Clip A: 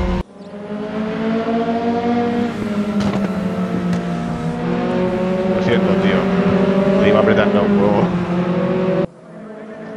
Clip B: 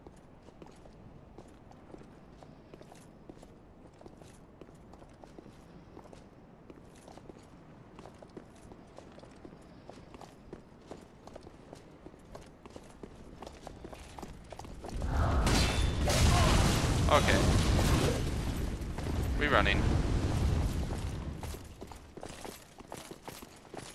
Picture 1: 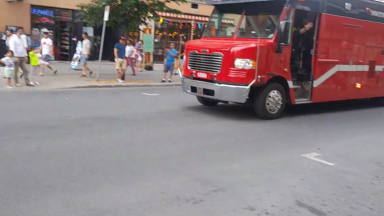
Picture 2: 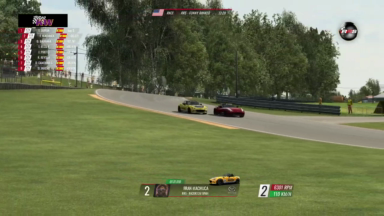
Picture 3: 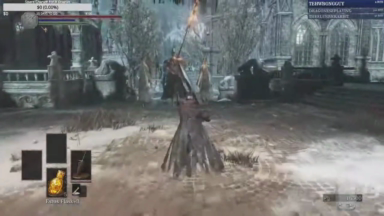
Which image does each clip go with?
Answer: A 2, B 3